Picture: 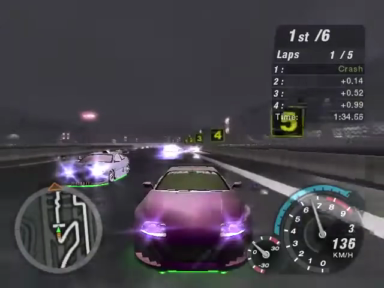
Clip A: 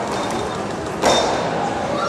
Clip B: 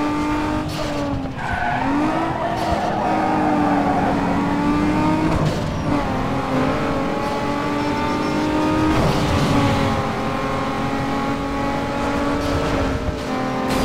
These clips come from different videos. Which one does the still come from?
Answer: B